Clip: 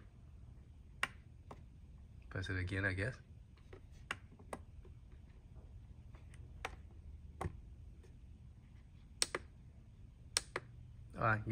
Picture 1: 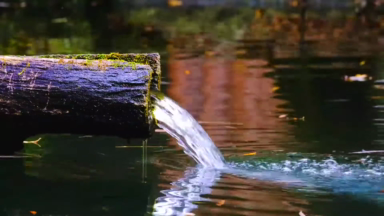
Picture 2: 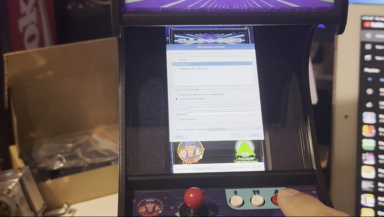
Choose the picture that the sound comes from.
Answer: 2